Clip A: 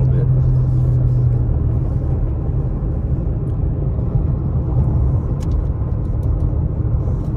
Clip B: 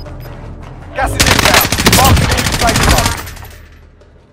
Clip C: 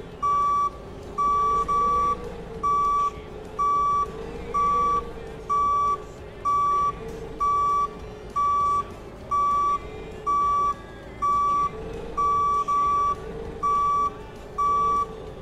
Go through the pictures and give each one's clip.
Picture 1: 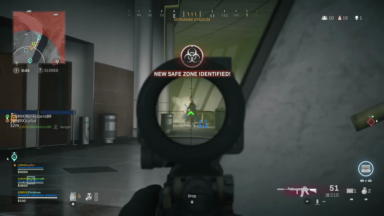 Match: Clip B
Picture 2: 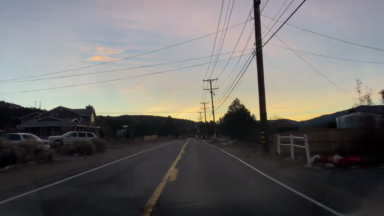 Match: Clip A